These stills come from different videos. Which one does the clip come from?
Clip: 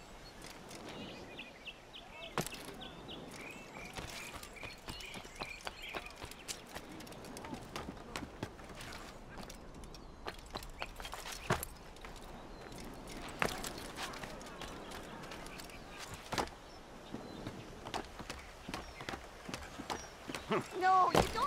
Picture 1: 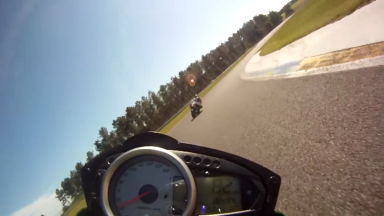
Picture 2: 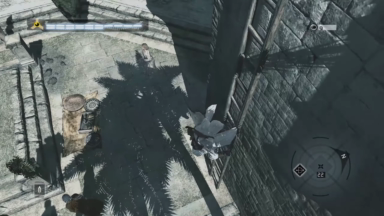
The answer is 2